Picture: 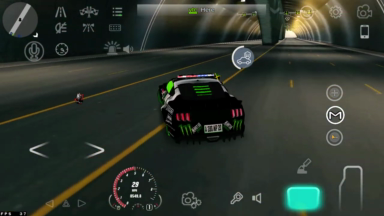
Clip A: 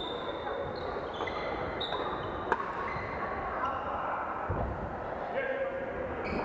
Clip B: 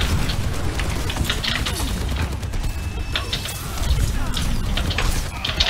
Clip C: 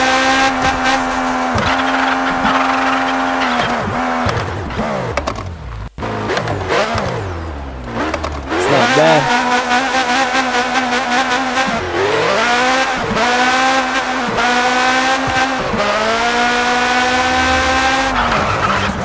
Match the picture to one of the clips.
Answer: C